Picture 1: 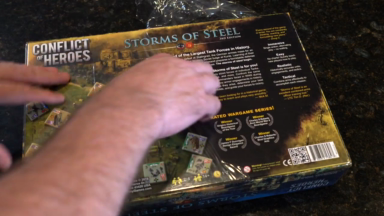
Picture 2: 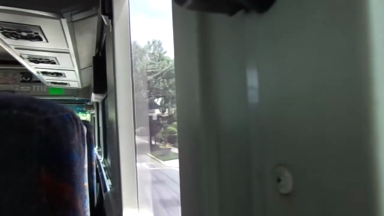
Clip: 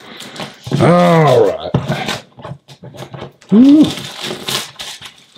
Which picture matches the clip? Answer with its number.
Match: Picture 1